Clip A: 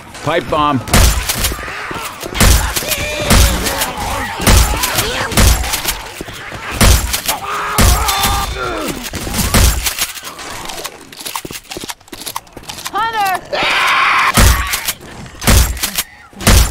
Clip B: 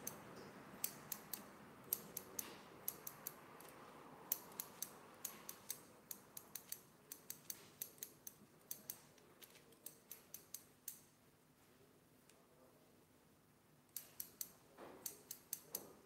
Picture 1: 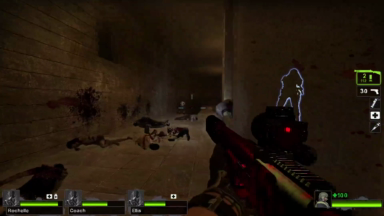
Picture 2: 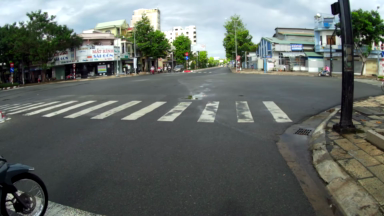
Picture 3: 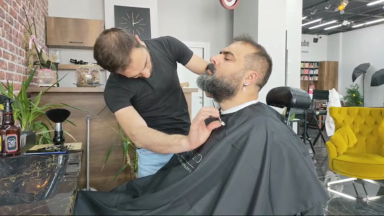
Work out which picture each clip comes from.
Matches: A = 1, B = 3